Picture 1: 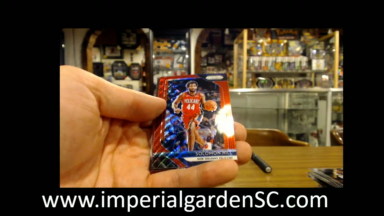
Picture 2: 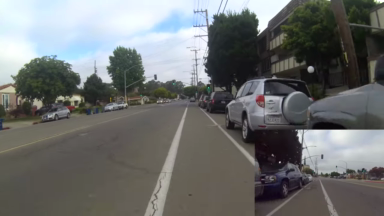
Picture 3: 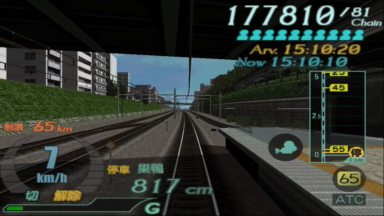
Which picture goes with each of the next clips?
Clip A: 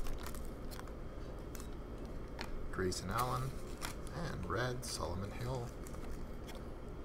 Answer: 1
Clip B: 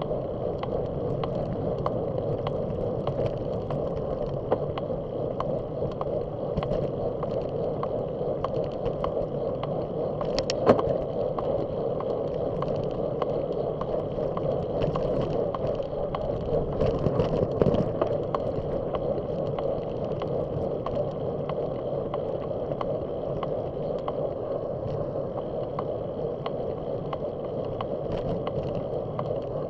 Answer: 2